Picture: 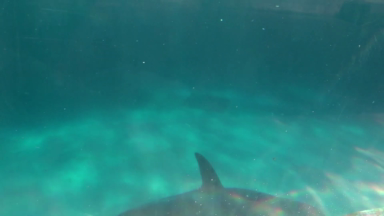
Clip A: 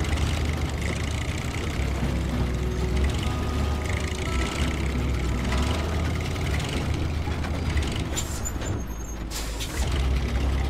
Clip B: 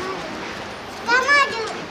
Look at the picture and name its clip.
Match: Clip B